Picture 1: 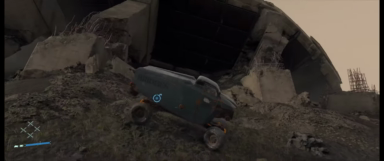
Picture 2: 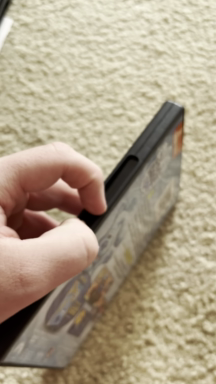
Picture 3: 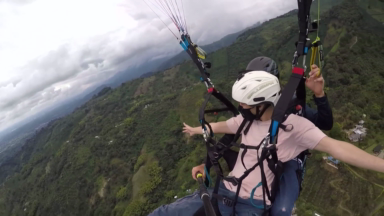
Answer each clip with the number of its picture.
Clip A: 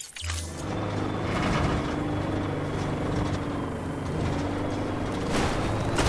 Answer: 1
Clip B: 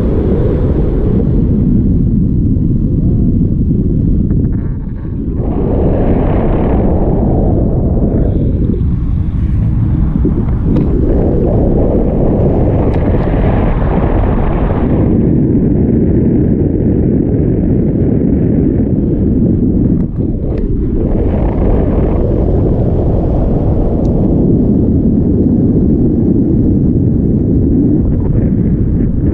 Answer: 3